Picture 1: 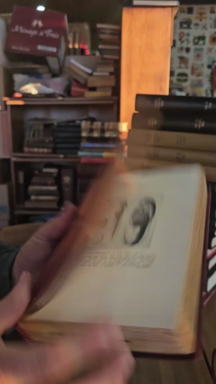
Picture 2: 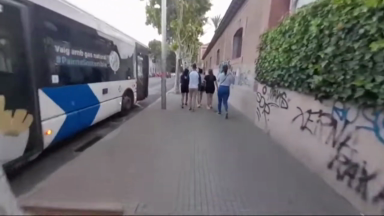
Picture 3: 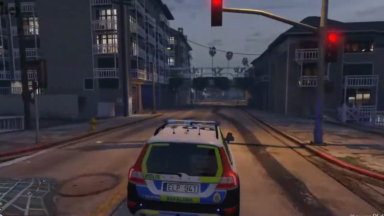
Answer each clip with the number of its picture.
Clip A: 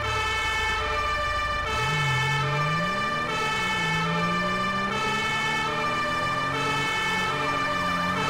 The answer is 3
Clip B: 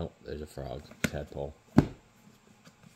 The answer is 1